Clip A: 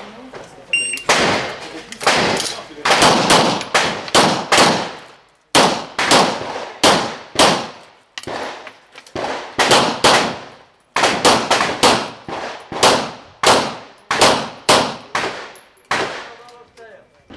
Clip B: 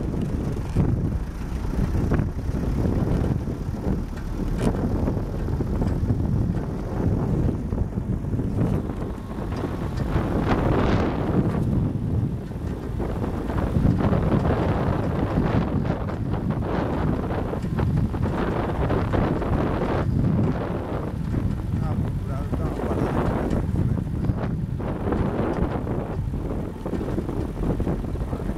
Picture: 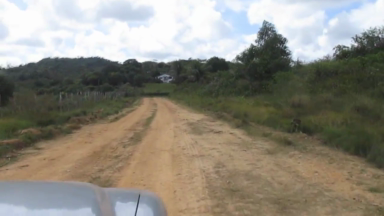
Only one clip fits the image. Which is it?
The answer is B